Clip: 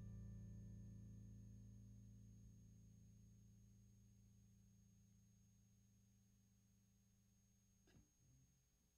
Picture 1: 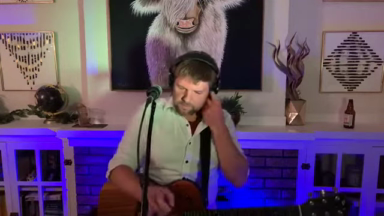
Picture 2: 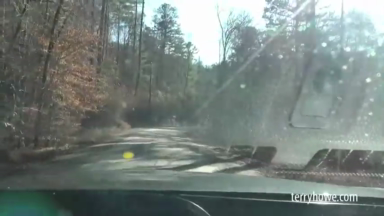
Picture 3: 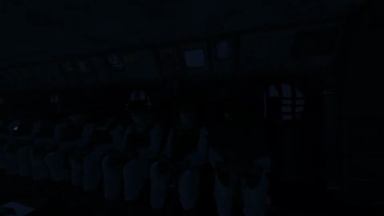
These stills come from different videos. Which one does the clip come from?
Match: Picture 1